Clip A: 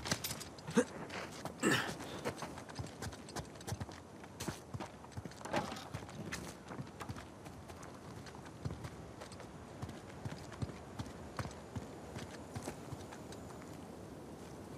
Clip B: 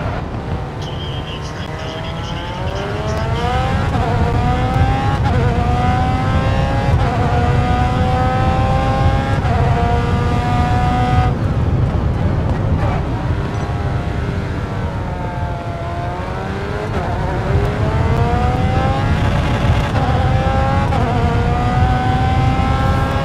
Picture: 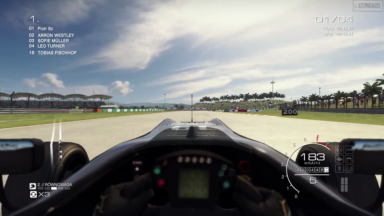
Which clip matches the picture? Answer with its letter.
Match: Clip B